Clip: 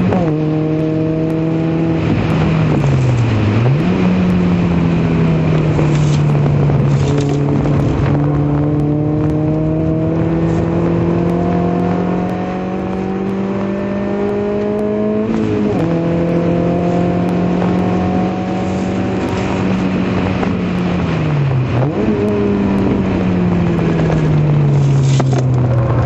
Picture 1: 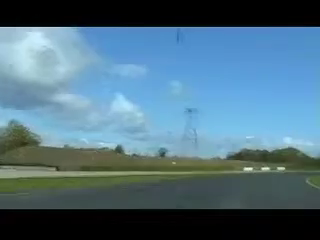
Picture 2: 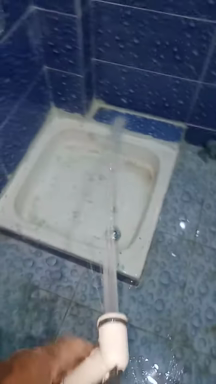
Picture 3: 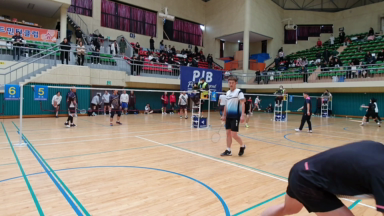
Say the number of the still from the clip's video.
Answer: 1